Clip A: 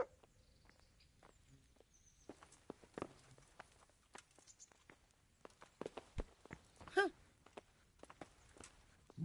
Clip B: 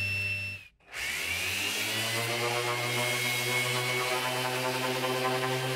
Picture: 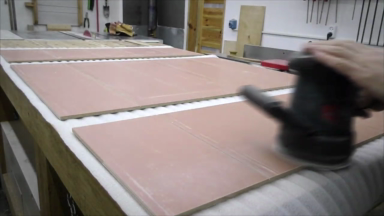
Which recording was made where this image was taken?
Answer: B